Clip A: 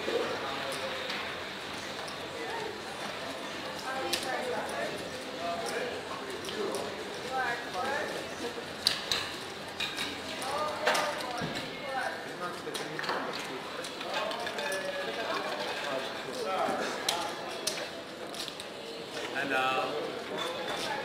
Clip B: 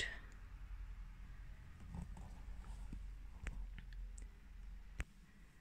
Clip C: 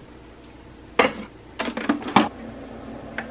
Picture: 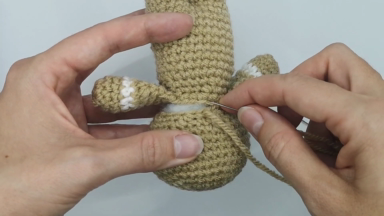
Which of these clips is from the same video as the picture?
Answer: B